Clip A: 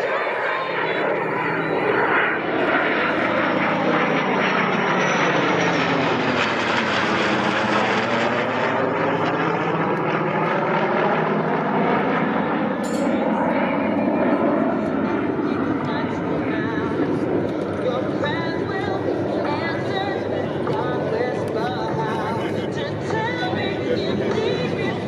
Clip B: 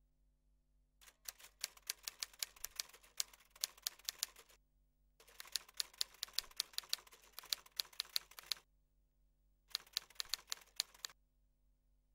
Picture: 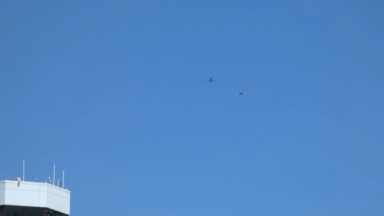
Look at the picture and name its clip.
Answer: A